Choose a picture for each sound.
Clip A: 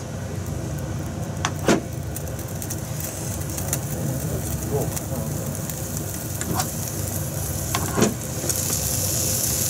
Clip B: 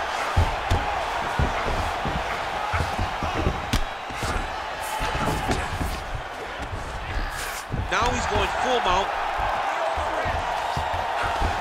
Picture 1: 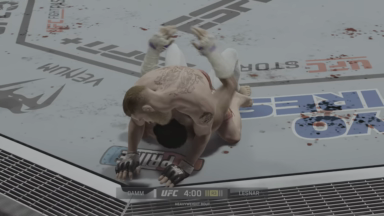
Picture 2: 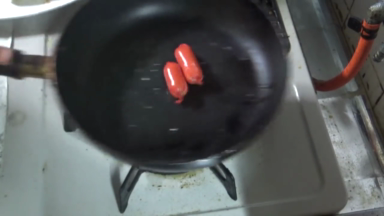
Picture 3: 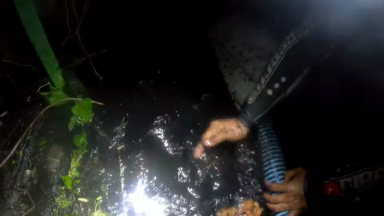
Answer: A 2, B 1